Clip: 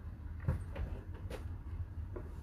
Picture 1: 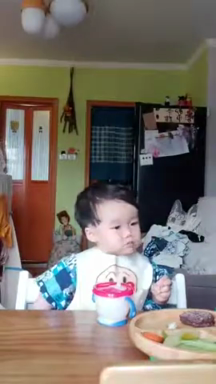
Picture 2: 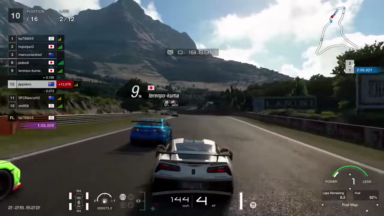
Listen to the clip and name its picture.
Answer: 1